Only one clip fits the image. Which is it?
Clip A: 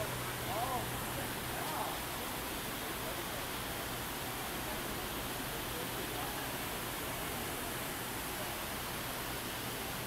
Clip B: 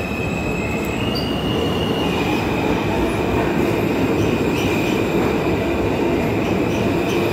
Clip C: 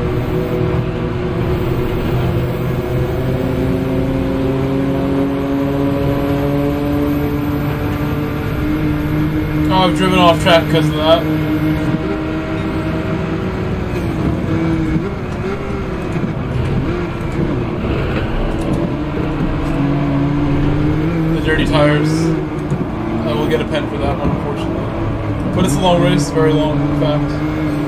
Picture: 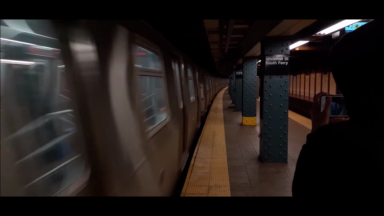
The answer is B